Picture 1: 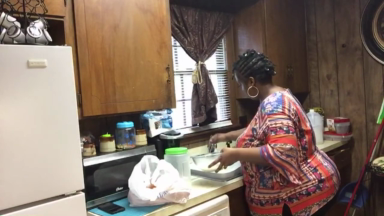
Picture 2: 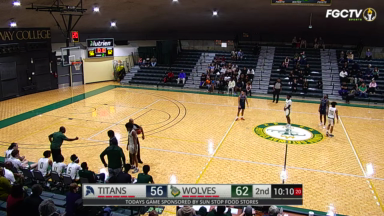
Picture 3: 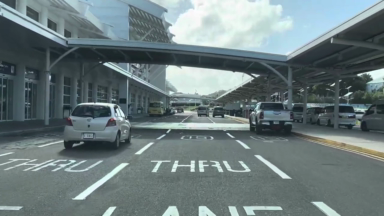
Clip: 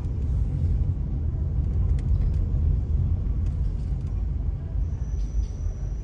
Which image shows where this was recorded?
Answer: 3